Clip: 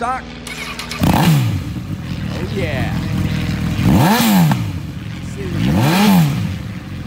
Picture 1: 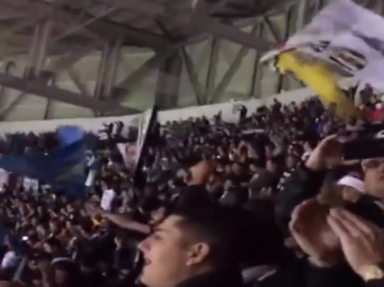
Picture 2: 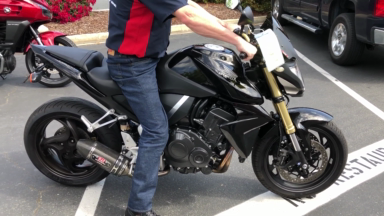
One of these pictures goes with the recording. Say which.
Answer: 2